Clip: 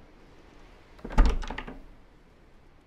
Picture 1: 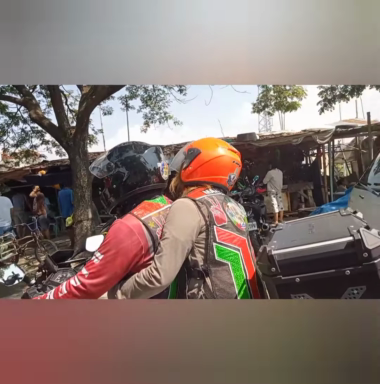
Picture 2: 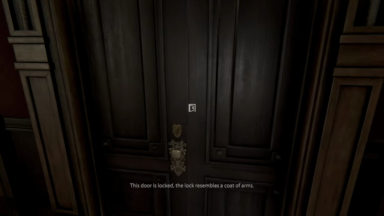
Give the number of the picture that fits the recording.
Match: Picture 2